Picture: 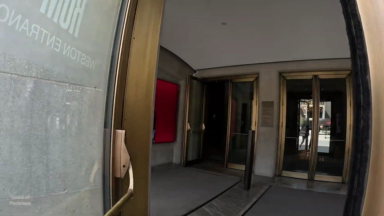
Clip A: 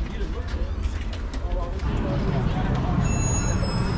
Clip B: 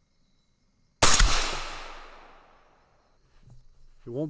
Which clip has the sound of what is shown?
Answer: A